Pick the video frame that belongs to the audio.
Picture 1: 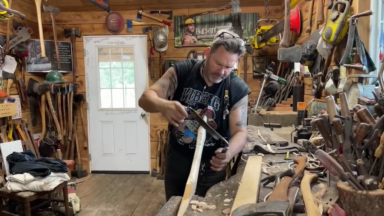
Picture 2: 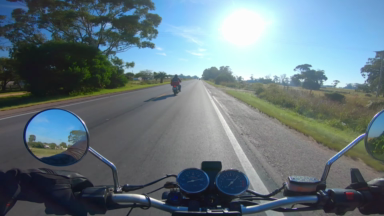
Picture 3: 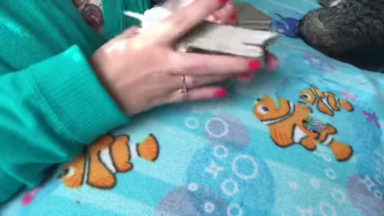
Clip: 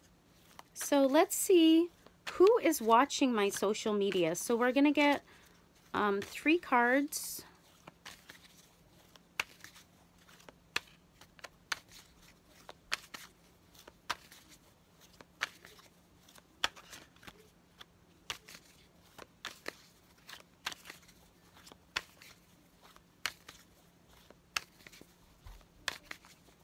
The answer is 3